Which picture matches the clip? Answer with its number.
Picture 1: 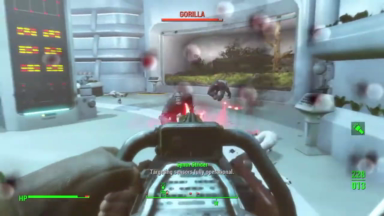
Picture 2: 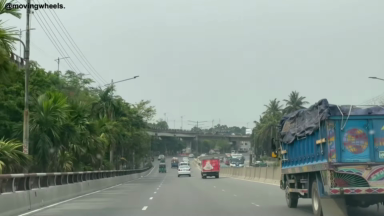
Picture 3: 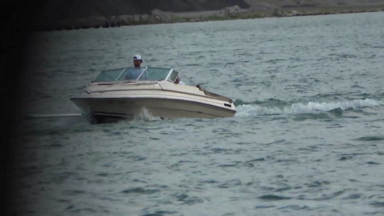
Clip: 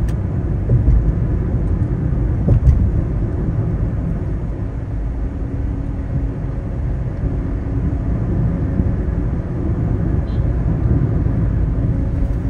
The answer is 2